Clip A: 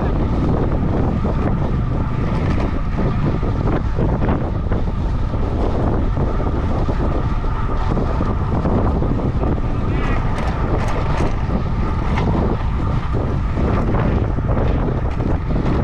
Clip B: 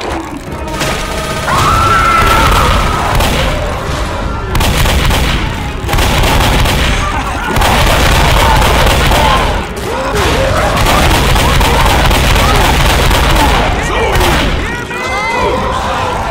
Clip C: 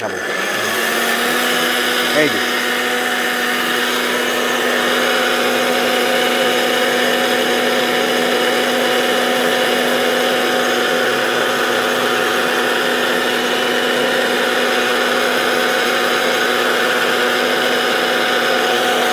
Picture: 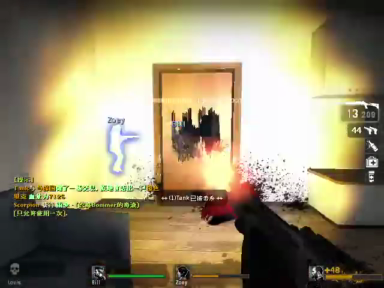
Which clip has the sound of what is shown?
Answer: B